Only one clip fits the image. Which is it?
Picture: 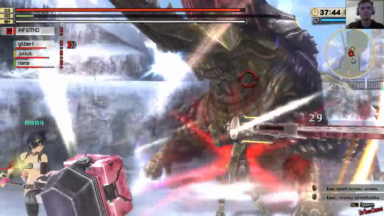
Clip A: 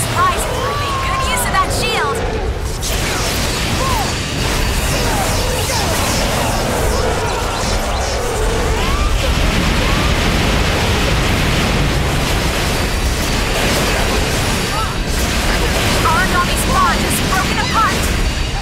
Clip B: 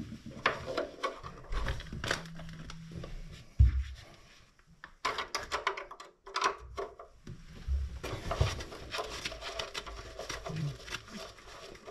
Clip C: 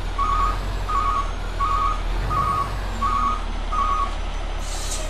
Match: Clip A